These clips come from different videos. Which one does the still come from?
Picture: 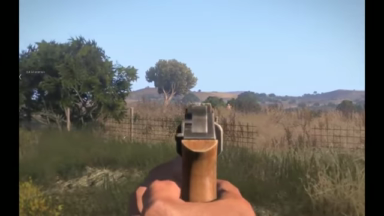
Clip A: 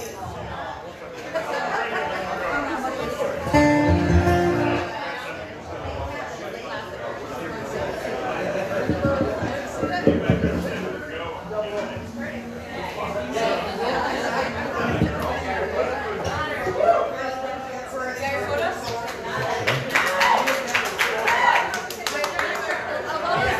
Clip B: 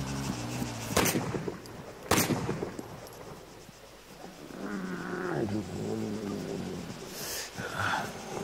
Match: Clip B